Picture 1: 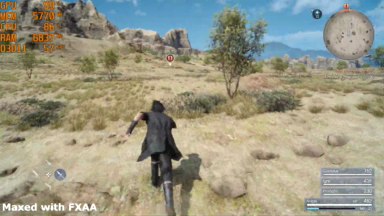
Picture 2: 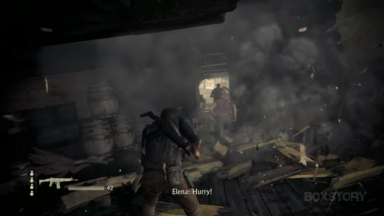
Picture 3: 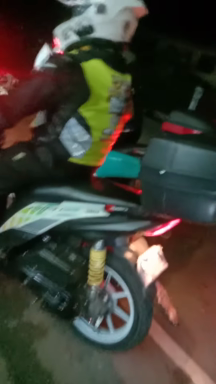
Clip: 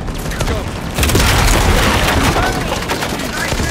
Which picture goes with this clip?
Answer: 2